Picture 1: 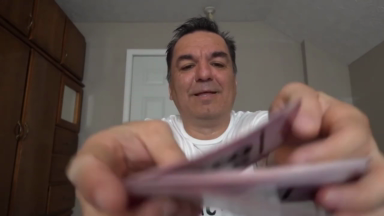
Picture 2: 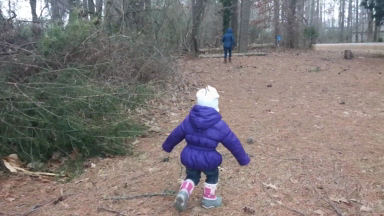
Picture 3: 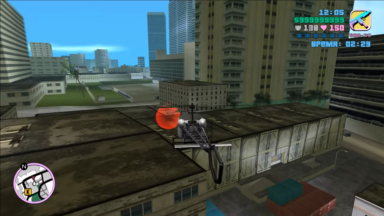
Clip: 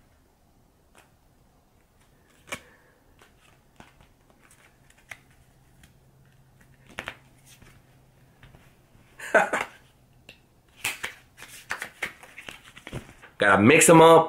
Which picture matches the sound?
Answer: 1